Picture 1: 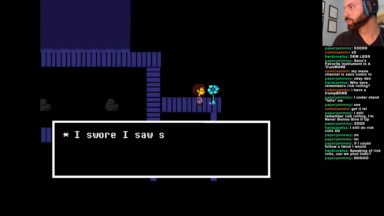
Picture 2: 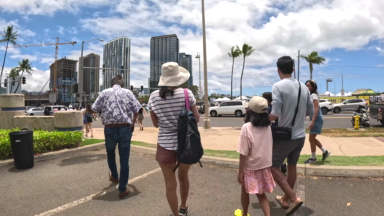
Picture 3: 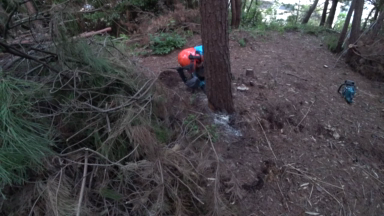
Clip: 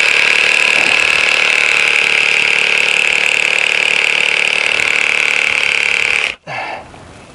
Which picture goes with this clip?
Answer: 3